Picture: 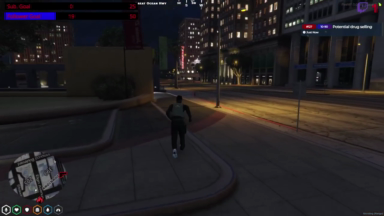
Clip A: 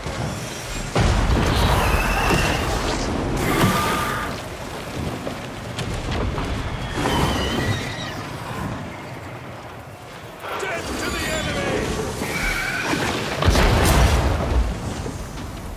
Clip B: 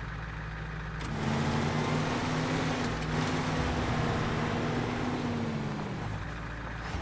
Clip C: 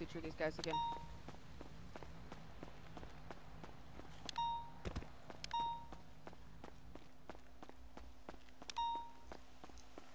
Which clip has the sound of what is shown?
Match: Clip C